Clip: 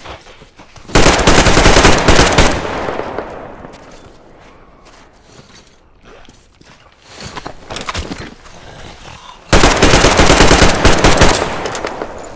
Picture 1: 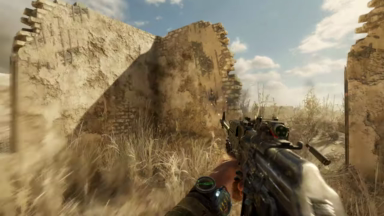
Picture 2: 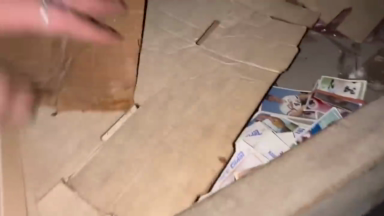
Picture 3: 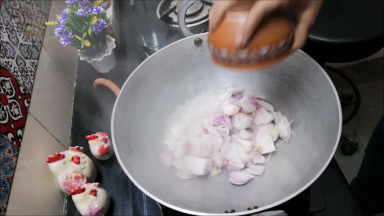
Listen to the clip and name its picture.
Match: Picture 1